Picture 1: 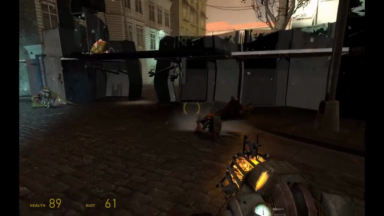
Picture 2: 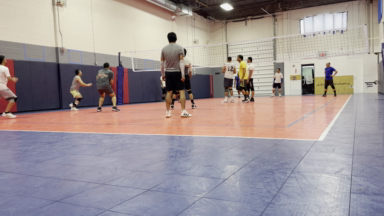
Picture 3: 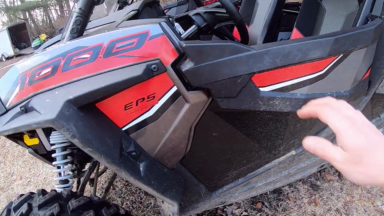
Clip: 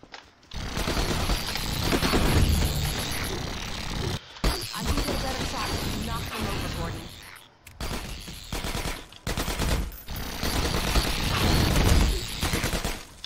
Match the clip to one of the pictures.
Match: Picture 1